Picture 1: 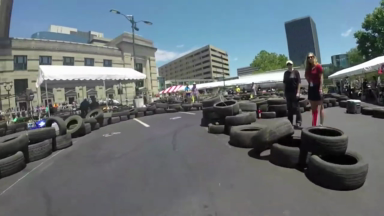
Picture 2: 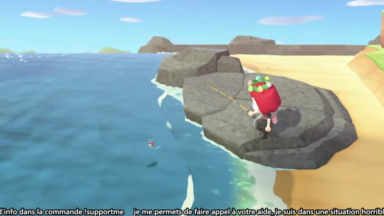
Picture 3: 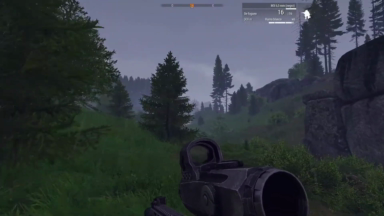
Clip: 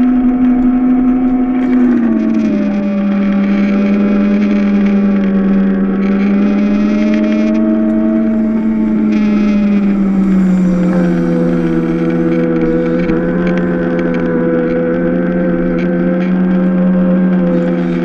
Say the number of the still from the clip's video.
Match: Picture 1